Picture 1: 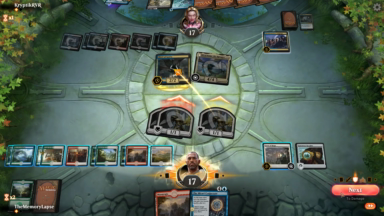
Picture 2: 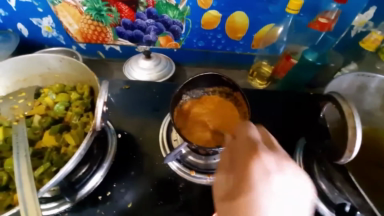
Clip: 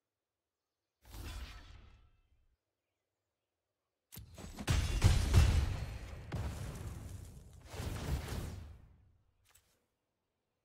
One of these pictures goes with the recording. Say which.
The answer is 1